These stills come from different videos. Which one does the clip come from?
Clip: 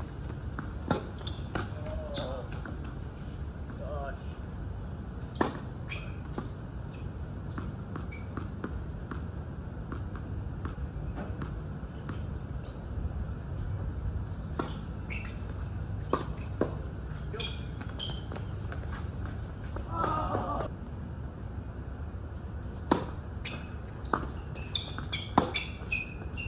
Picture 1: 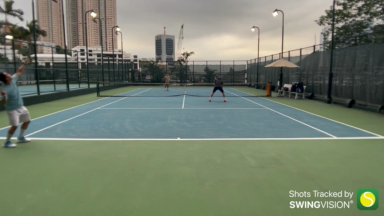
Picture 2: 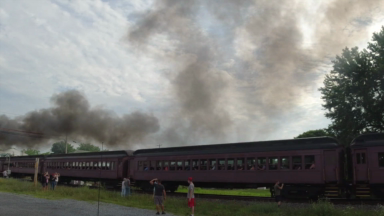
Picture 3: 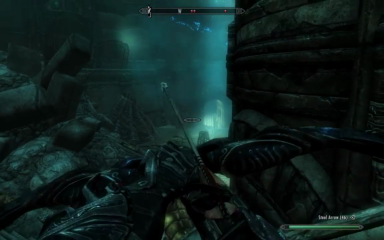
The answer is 1